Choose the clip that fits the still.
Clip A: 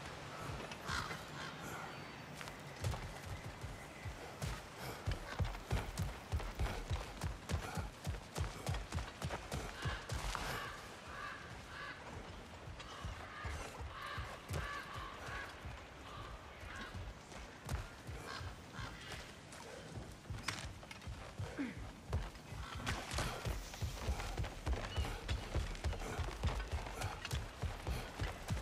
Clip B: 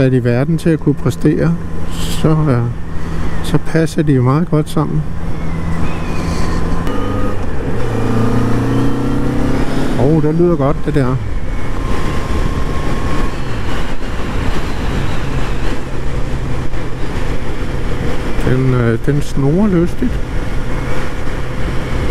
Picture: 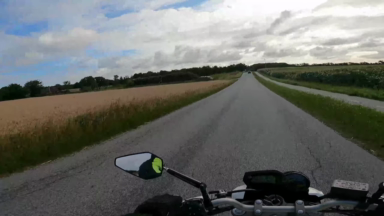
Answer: B